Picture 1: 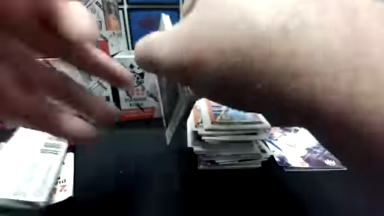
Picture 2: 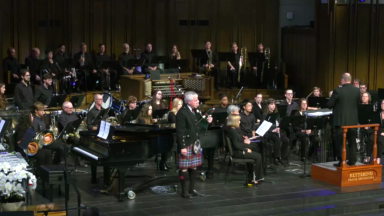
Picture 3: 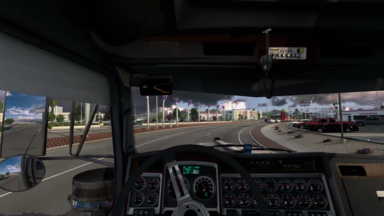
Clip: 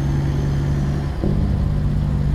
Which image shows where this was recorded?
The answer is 3